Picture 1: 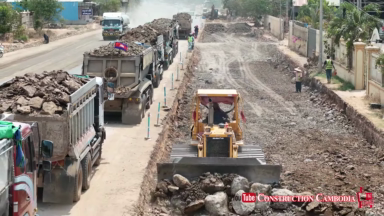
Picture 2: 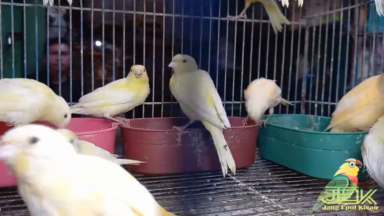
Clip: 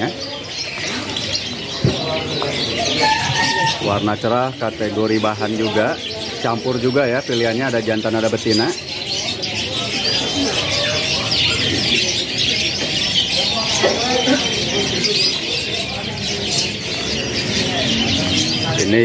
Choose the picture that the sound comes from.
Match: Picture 2